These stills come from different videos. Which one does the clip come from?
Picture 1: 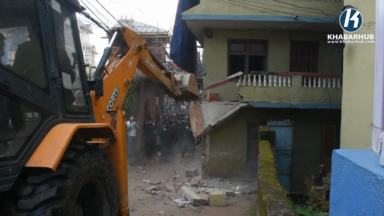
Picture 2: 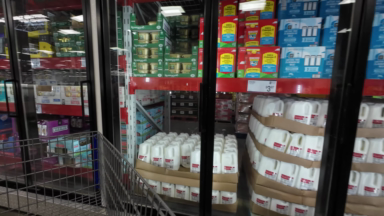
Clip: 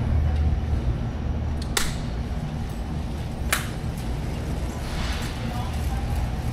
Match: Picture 2